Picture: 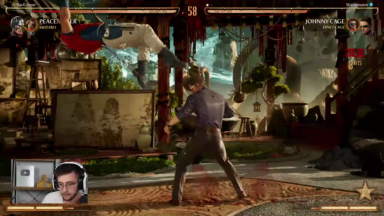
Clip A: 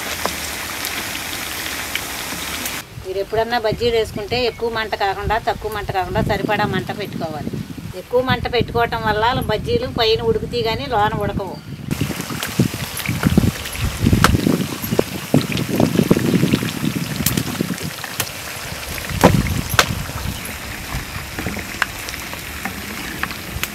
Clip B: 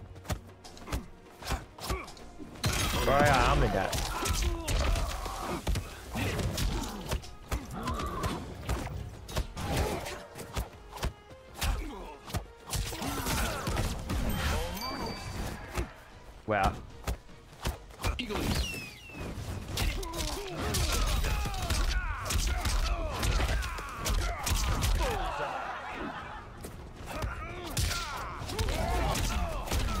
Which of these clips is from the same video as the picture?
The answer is B